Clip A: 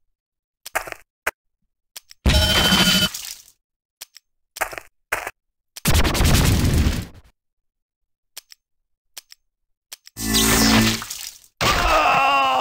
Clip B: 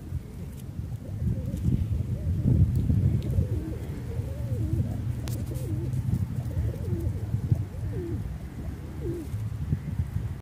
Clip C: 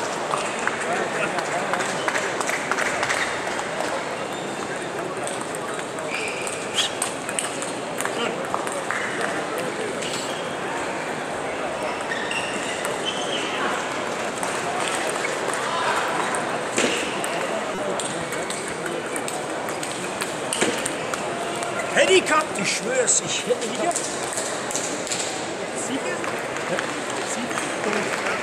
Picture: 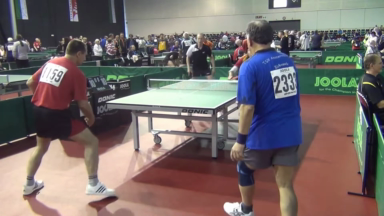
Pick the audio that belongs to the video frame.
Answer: C